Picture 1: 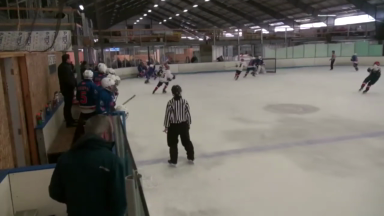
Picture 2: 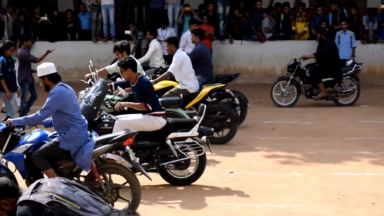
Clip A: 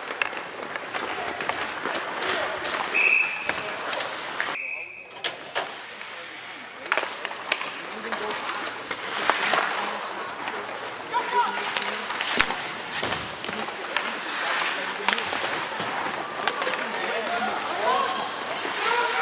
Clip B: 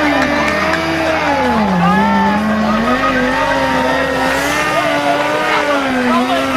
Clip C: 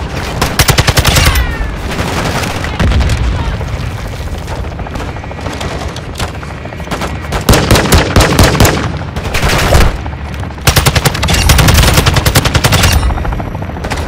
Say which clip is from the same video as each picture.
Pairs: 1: A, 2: B